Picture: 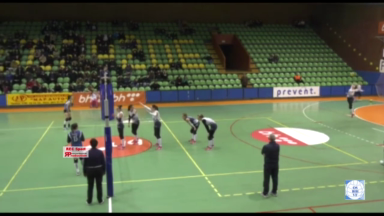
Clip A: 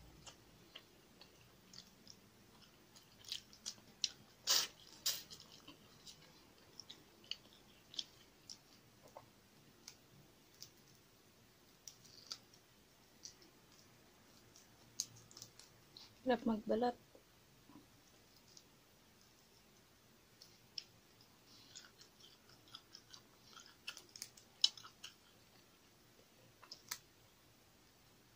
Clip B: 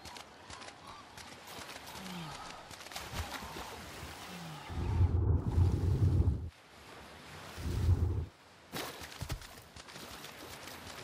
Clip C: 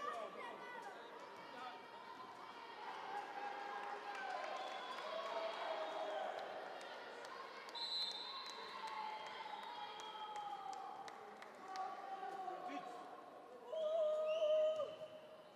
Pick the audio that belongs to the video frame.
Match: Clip C